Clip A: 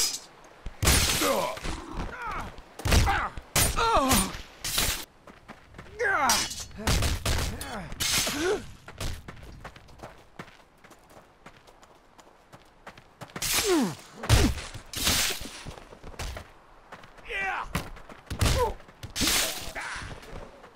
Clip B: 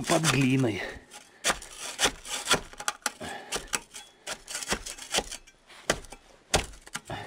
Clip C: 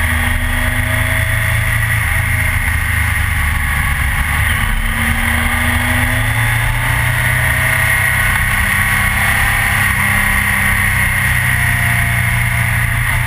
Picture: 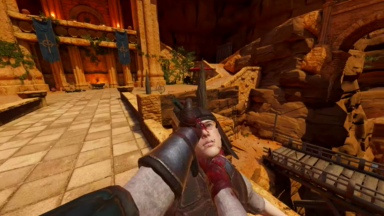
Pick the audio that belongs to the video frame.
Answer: A